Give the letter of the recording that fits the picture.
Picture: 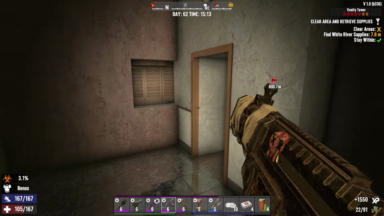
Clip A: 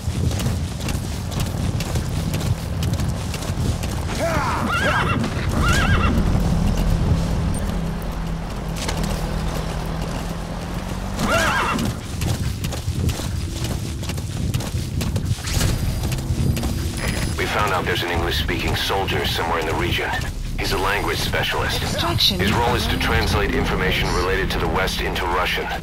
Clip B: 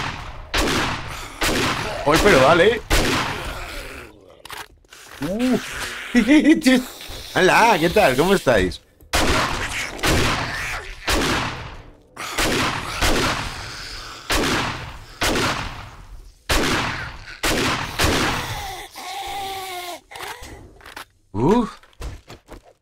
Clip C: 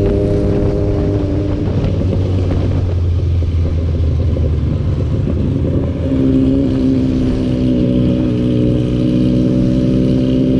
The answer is B